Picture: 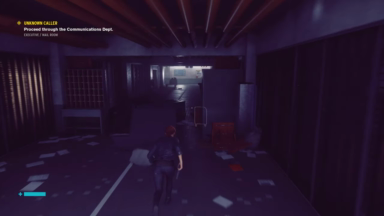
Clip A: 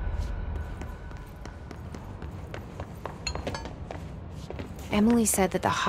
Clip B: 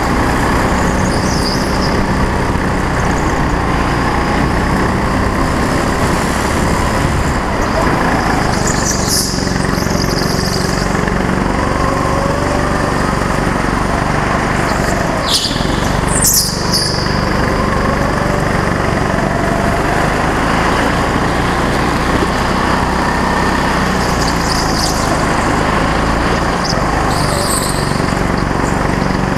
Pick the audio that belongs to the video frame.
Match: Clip A